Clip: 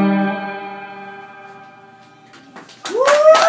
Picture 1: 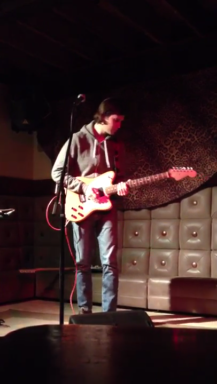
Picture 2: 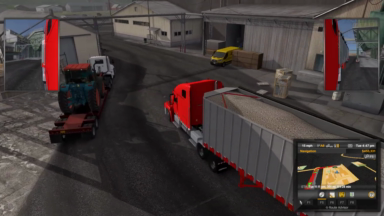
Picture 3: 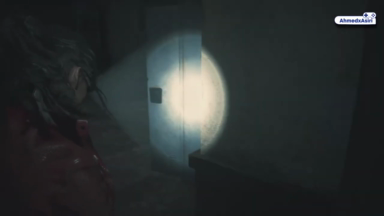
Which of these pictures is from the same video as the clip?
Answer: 1